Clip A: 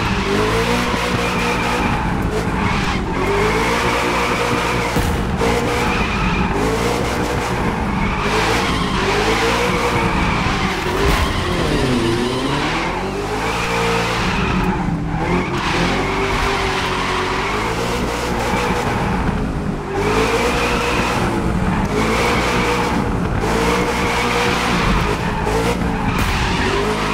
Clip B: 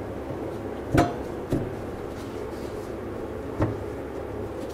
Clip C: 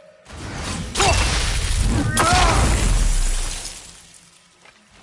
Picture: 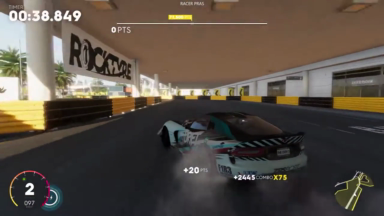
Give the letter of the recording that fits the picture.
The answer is A